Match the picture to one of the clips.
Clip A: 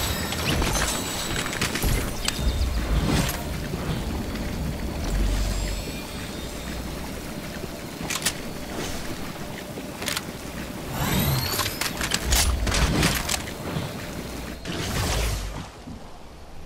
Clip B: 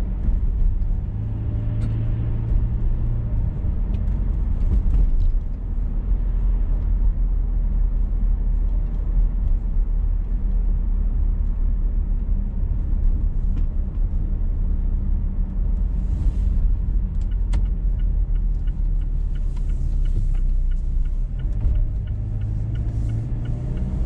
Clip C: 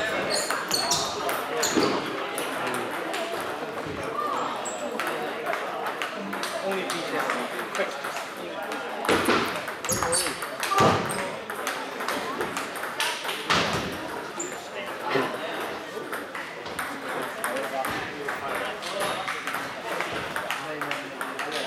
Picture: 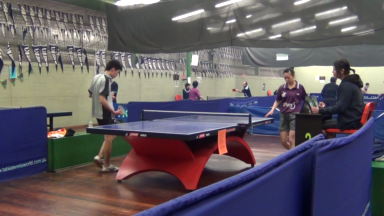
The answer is C